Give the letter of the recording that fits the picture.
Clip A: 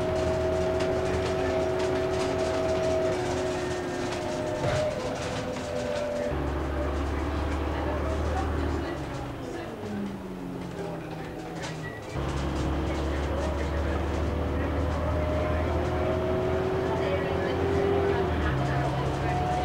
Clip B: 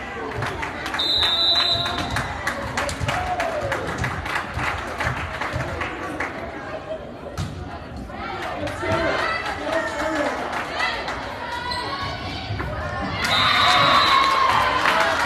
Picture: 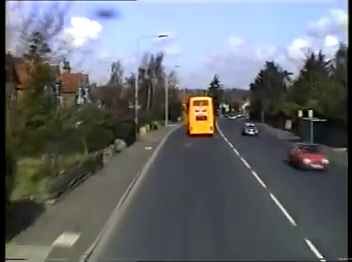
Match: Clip A